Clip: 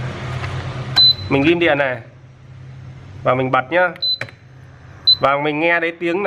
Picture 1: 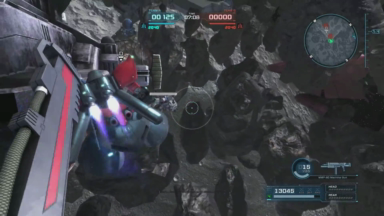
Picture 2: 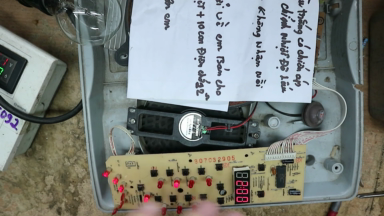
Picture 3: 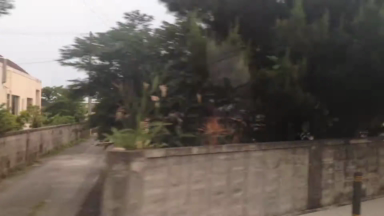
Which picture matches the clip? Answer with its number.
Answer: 2